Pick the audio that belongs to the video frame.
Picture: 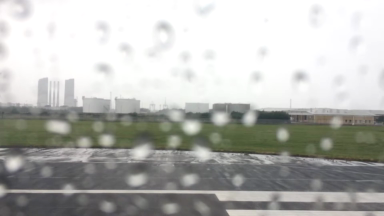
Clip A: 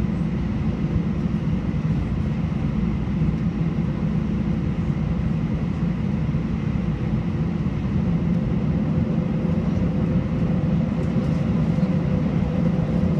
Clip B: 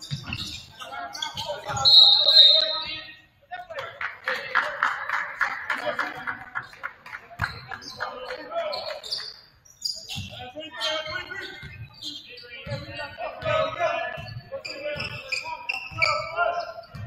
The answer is A